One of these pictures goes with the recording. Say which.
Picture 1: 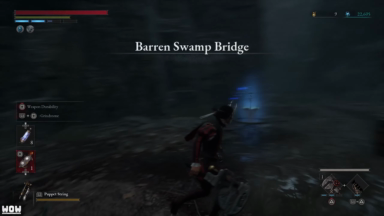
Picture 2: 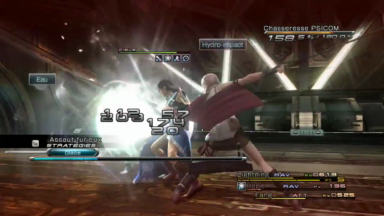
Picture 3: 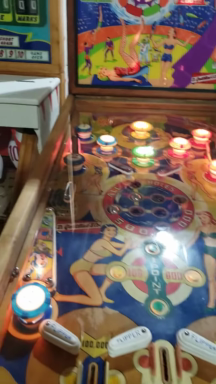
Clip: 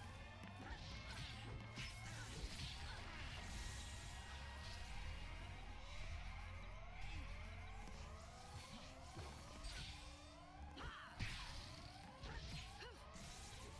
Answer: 2